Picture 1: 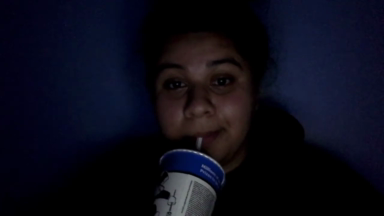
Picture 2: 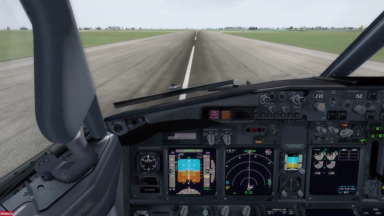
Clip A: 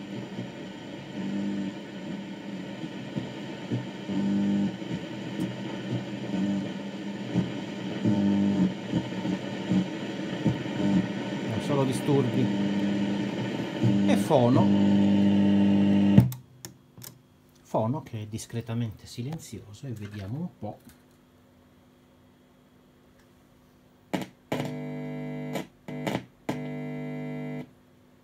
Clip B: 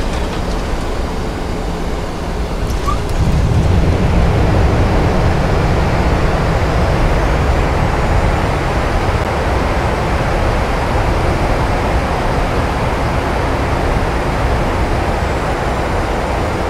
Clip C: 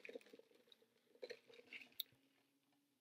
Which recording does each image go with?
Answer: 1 C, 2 B